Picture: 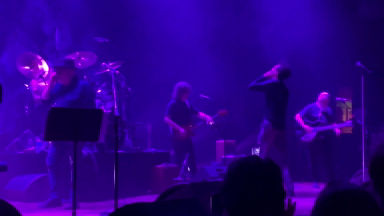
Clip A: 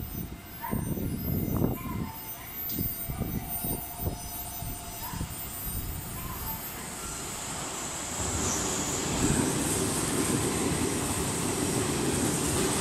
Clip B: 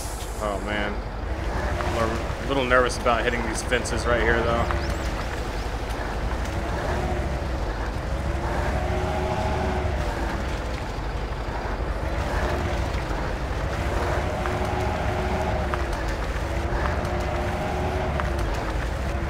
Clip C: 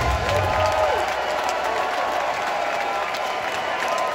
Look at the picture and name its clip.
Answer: C